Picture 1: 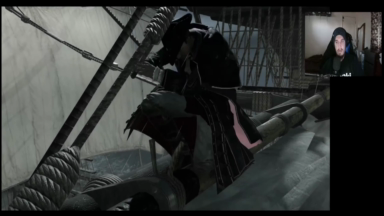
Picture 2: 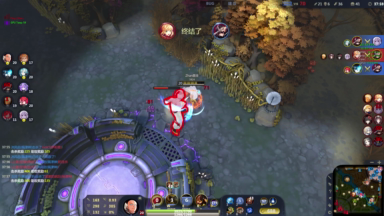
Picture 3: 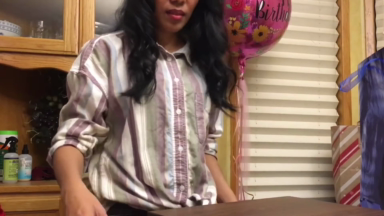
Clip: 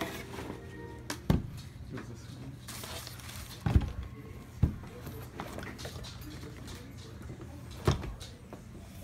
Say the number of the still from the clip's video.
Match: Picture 3